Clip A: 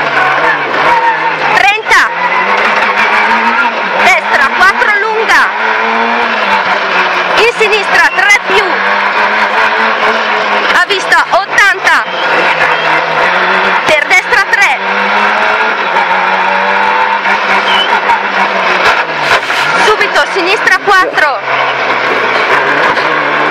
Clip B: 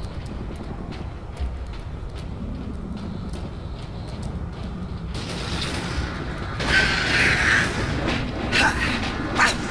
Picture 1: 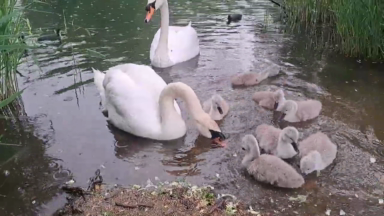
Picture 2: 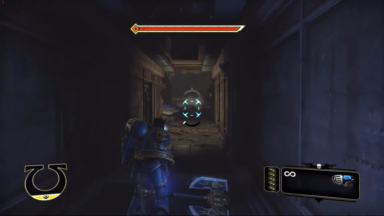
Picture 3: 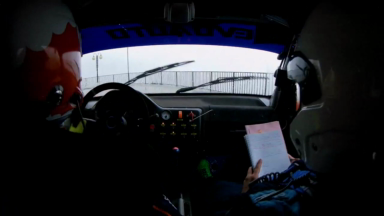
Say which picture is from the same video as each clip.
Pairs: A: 3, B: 2